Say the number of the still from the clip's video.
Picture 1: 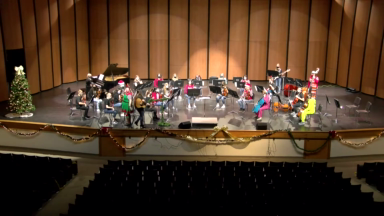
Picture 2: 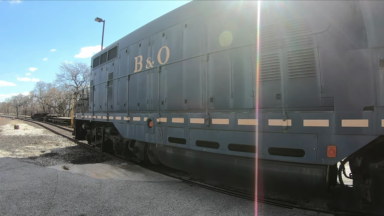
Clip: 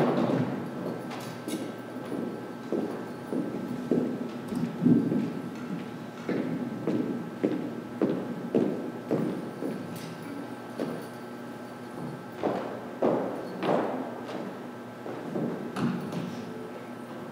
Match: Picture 1